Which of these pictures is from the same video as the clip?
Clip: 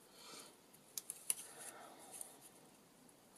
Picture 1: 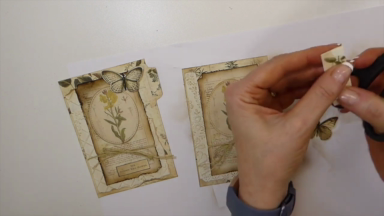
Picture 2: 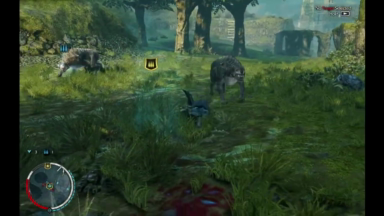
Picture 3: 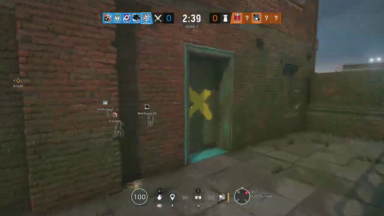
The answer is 1